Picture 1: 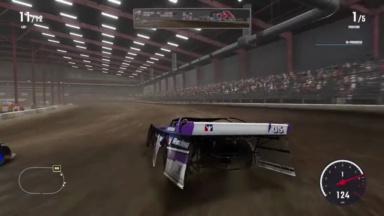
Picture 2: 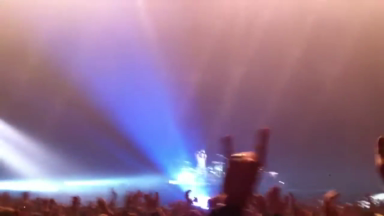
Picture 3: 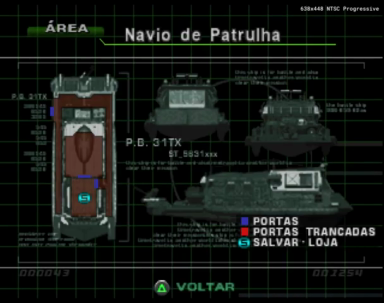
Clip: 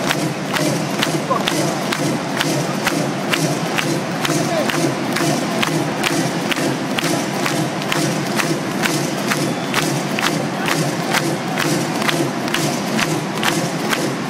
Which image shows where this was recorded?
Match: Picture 2